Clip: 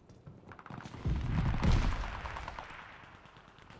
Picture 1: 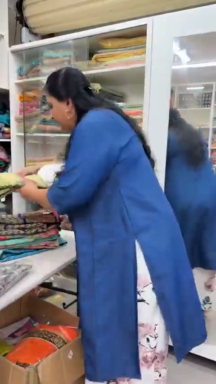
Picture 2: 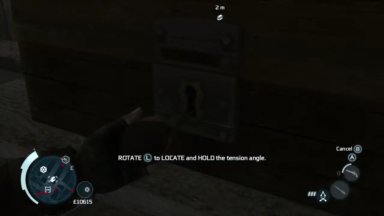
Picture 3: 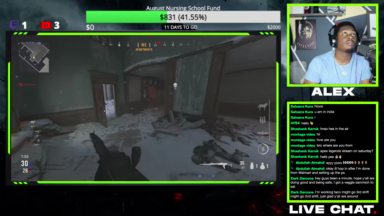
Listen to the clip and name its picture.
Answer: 3